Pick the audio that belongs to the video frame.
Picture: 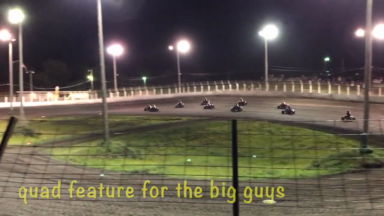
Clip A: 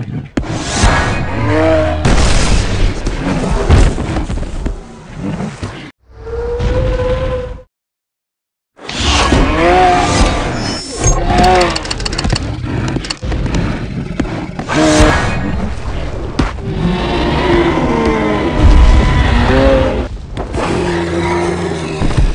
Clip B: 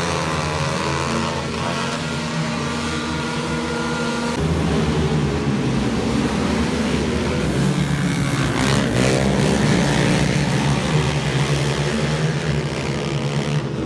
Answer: B